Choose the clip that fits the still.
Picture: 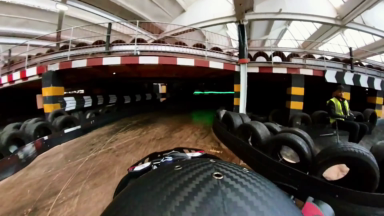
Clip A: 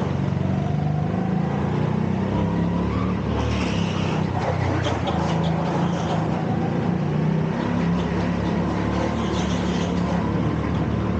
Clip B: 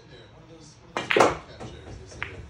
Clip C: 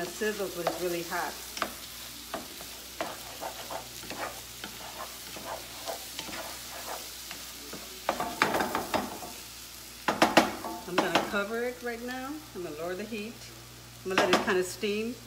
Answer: A